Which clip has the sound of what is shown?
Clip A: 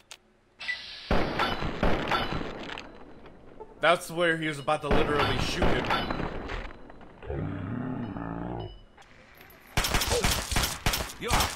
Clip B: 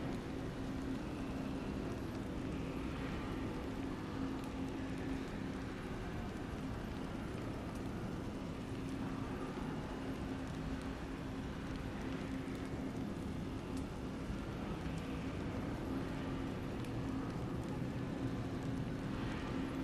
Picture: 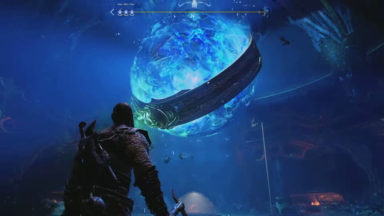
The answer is B